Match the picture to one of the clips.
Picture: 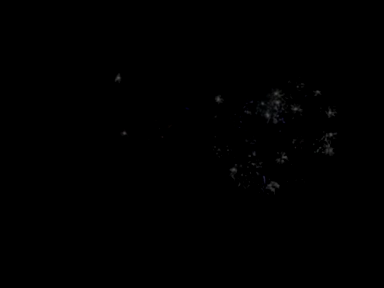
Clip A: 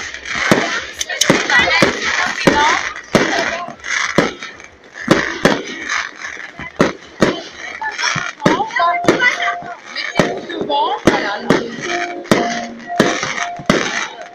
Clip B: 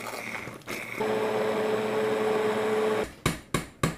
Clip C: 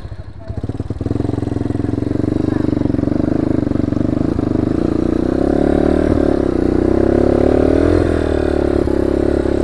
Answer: A